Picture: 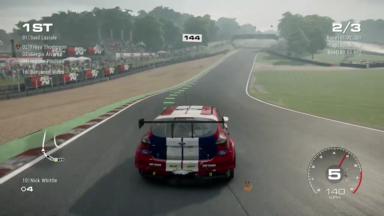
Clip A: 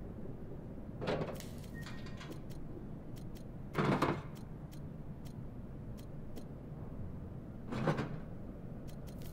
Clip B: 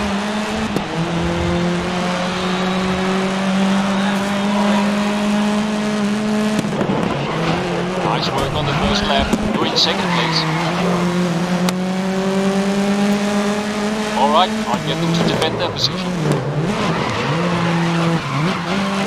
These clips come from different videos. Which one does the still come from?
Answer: B